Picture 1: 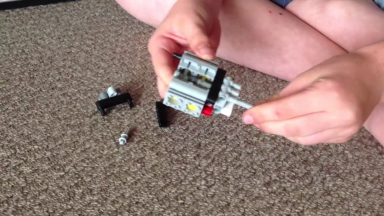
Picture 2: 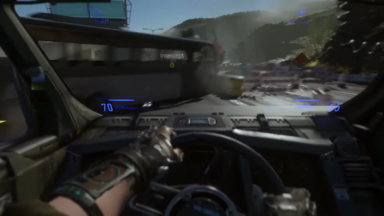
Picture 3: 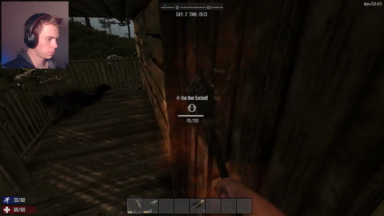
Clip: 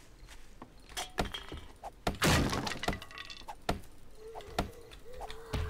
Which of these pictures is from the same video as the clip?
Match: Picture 3